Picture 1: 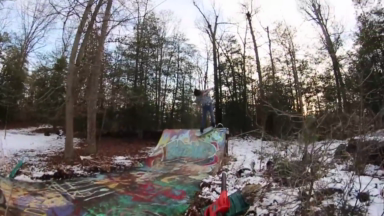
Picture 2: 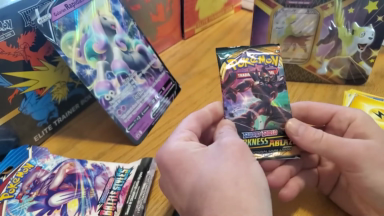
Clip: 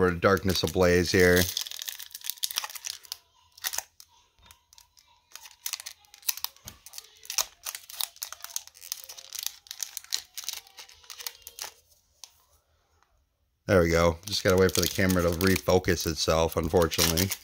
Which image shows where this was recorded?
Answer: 2